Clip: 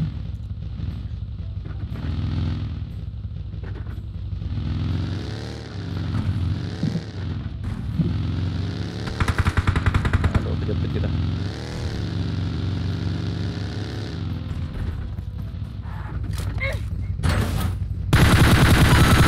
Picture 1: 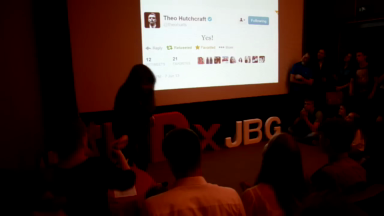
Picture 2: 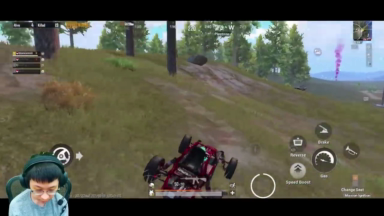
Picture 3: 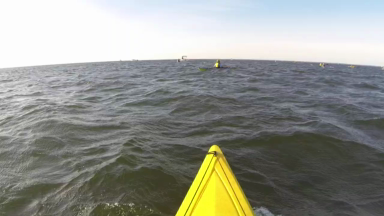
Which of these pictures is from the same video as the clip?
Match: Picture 2